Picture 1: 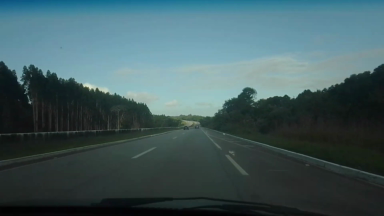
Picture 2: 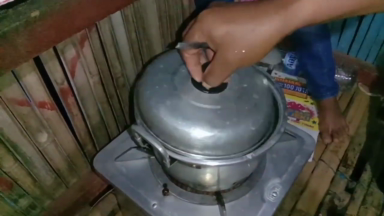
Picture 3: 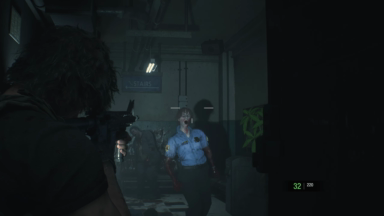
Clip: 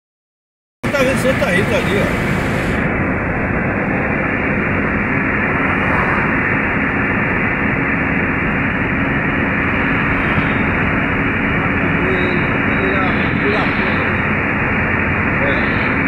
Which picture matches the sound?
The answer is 1